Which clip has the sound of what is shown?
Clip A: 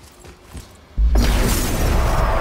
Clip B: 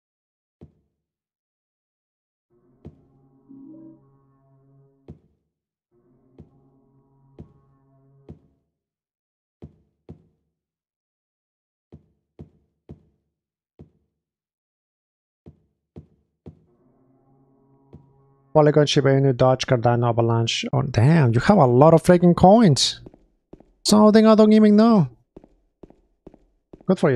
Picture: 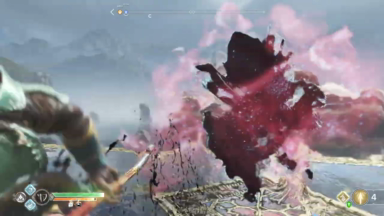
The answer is A